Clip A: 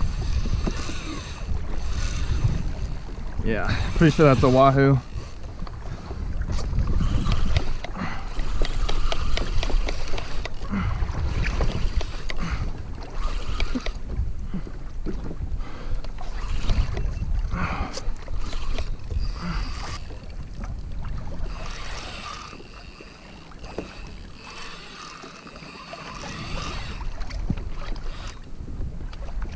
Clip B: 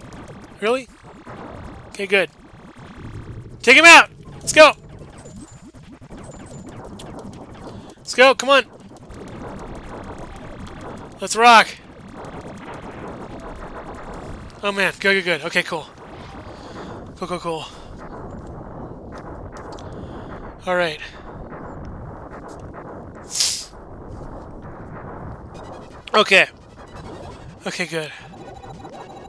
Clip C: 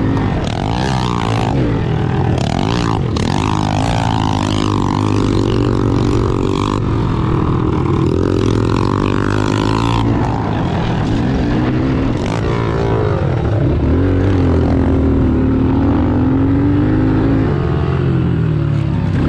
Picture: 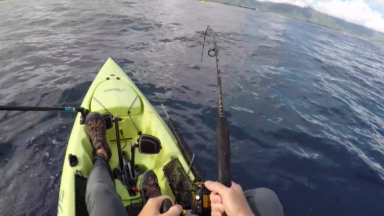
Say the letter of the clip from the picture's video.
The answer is A